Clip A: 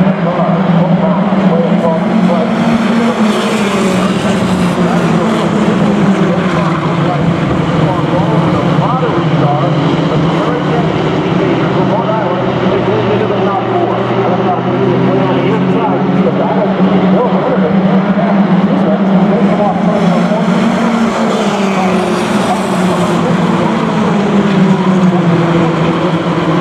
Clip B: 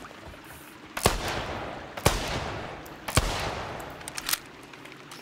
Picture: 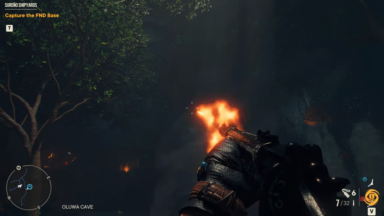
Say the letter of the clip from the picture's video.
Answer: B